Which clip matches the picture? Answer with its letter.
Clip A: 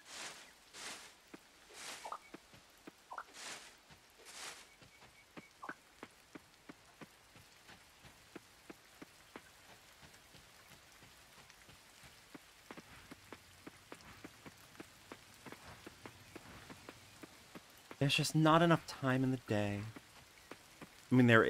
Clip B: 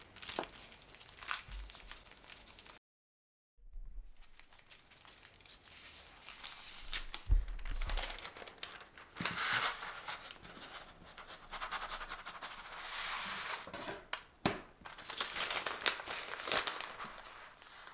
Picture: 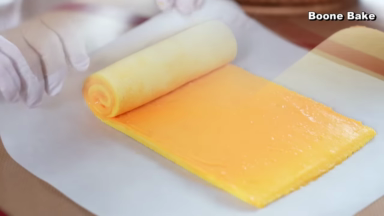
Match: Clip B